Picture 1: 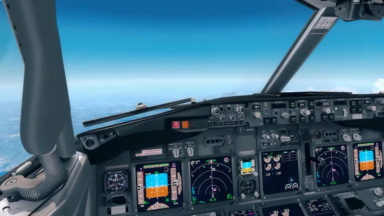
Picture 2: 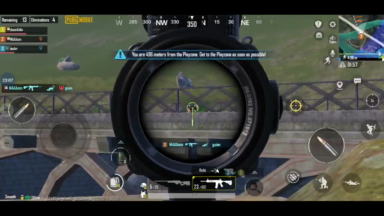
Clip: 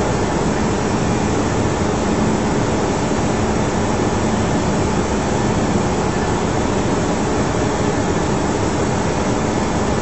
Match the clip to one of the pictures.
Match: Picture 1